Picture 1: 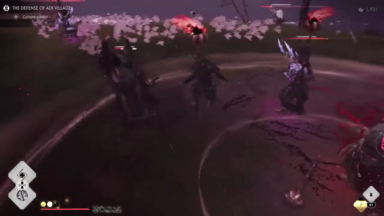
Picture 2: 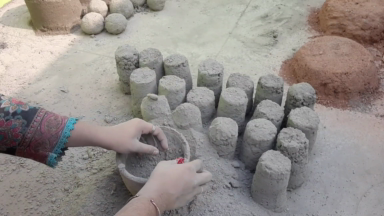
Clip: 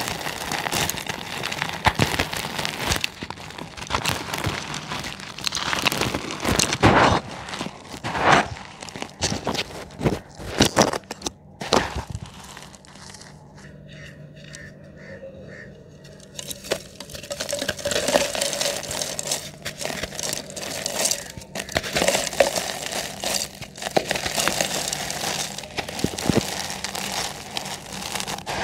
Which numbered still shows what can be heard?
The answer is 2